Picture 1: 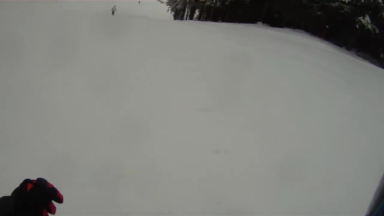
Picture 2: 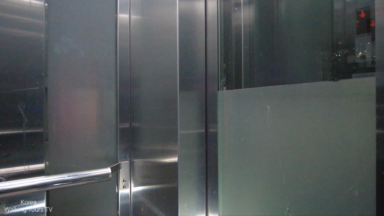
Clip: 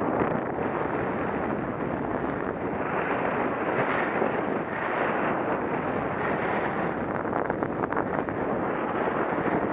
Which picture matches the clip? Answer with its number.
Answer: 1